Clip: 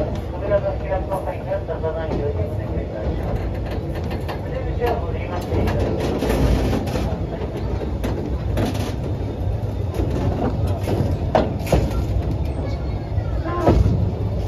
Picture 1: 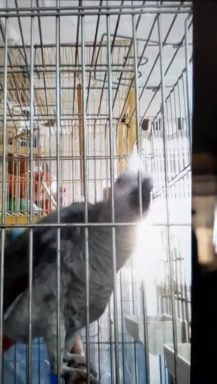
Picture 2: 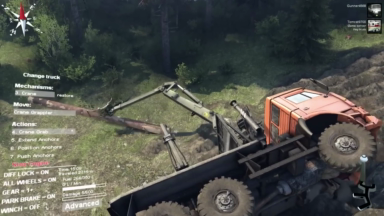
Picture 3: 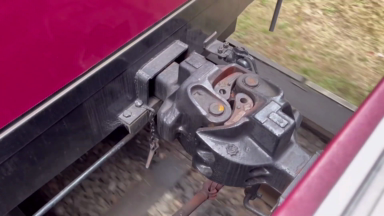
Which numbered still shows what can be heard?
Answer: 3